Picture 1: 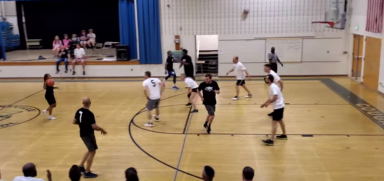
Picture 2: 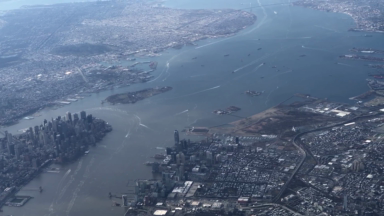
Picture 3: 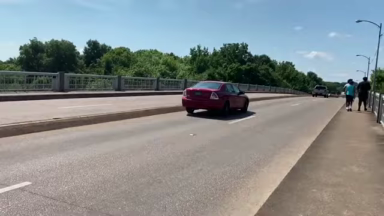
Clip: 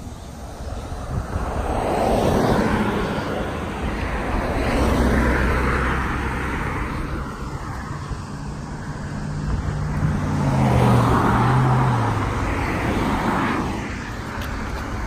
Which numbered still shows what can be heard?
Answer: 3